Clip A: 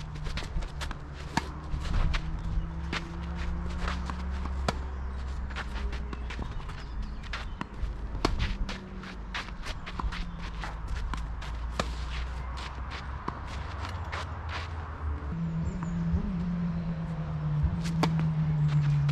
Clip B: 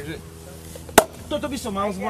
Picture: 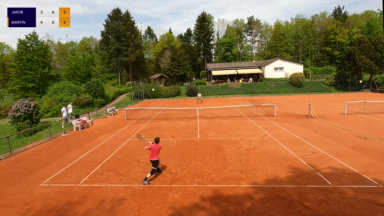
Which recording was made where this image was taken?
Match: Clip A